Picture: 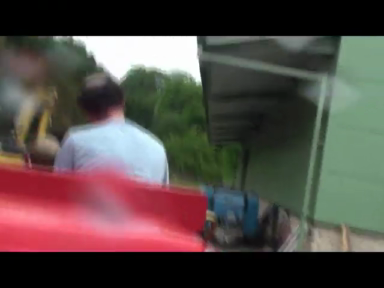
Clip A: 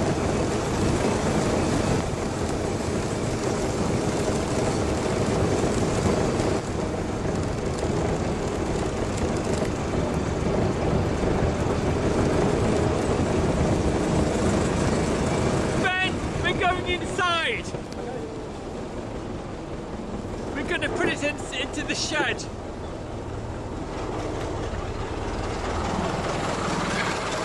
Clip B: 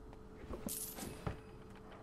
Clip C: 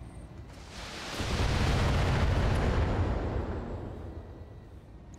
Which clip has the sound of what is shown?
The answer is A